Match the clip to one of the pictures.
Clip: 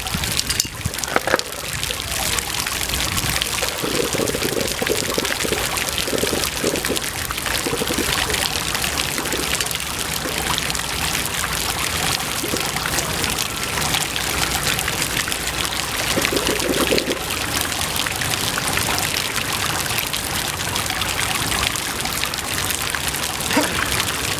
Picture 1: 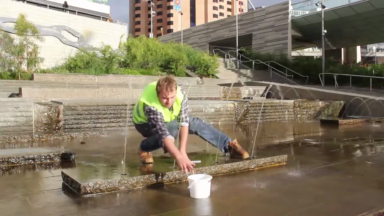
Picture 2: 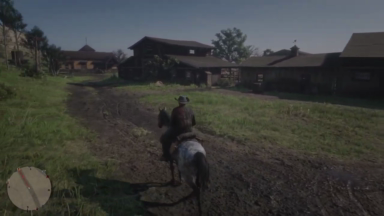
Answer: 1